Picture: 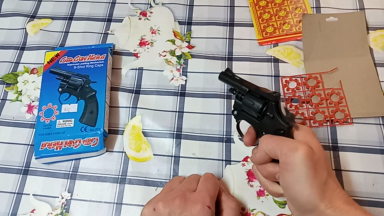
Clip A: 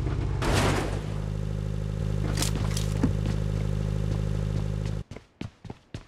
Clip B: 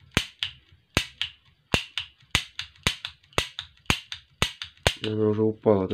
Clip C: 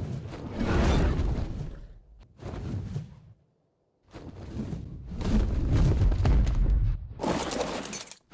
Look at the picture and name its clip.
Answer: B